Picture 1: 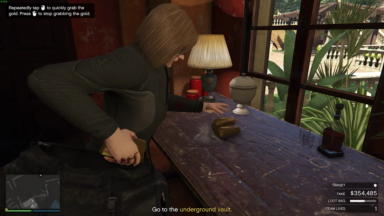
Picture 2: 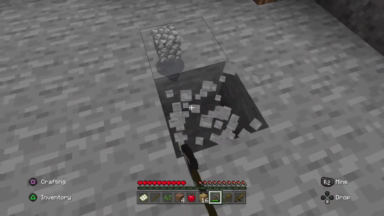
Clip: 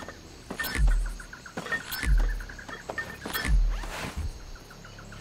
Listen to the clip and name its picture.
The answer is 1